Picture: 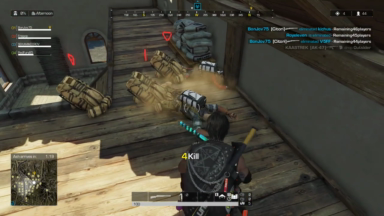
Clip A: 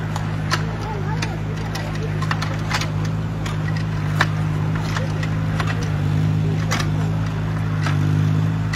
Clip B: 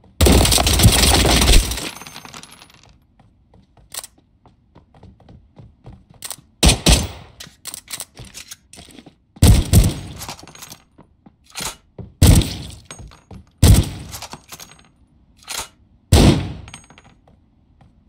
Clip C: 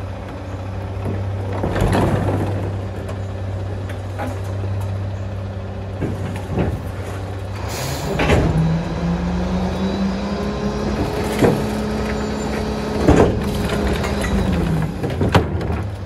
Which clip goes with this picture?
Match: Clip B